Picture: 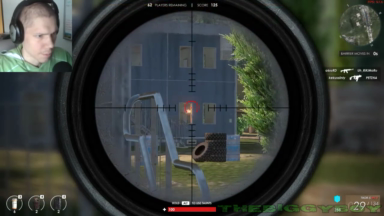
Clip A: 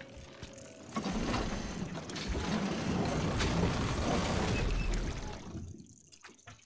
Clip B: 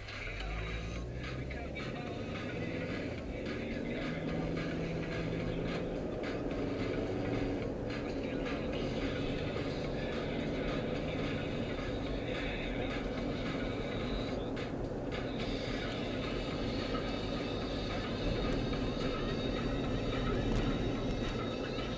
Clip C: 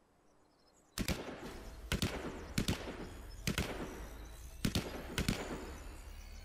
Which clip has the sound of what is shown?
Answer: C